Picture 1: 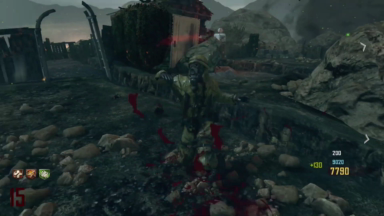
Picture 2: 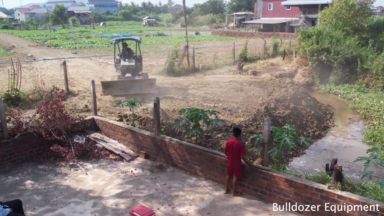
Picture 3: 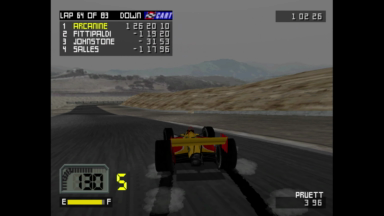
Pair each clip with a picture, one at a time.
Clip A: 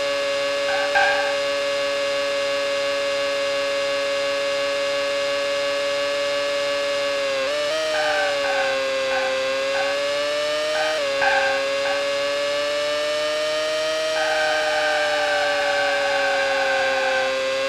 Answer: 3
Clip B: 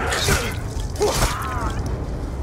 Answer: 1